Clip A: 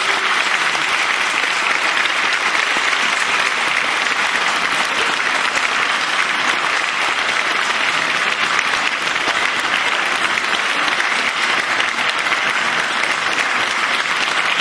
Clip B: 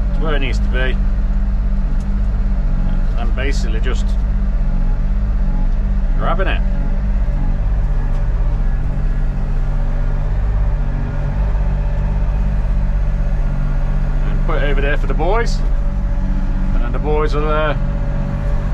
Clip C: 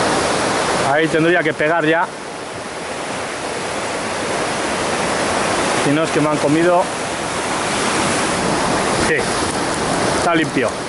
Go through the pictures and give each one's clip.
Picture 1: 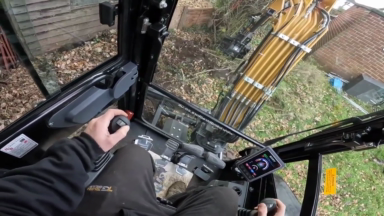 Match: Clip B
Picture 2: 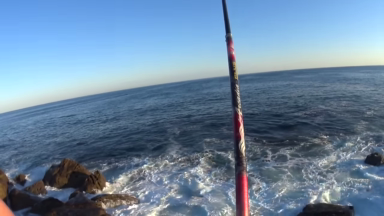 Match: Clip C